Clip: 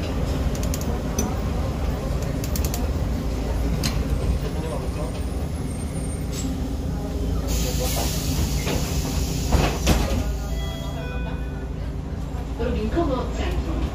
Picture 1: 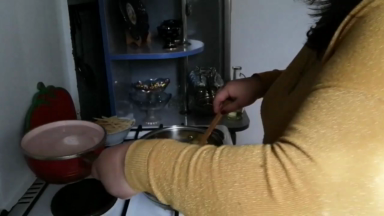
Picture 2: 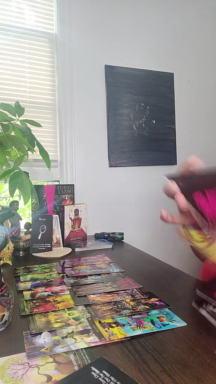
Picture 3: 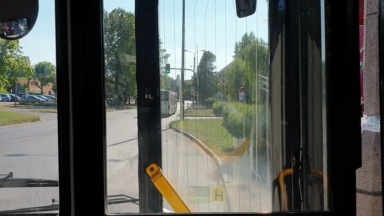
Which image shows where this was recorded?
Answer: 3